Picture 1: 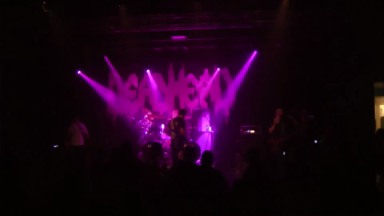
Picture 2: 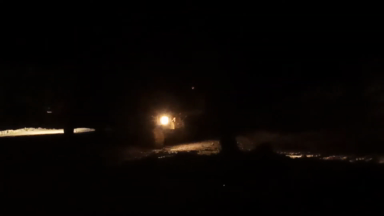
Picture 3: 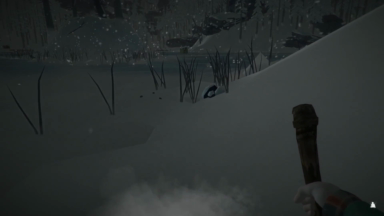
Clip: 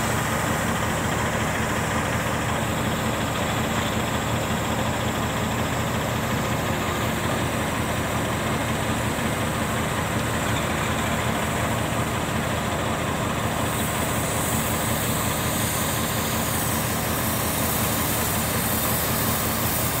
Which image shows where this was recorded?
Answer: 2